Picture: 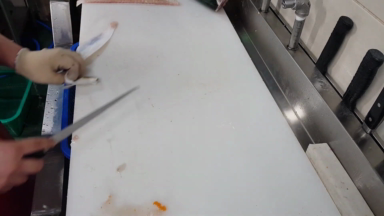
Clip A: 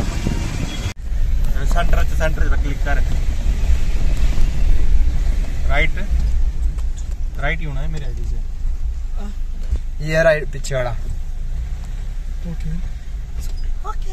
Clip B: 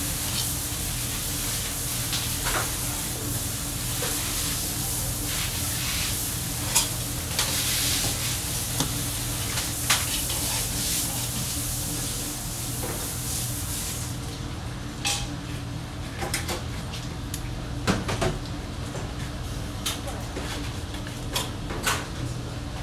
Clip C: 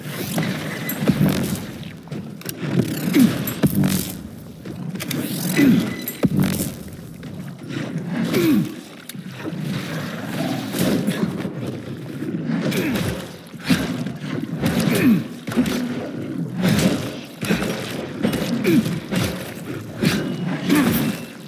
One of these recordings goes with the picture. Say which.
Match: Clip B